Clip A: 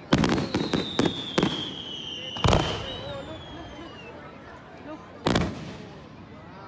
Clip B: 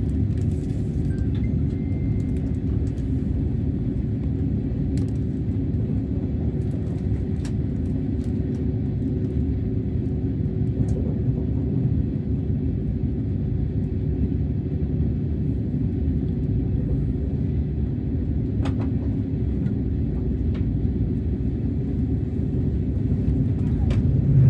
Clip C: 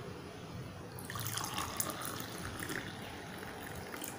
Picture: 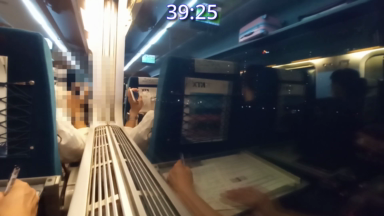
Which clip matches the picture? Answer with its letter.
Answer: B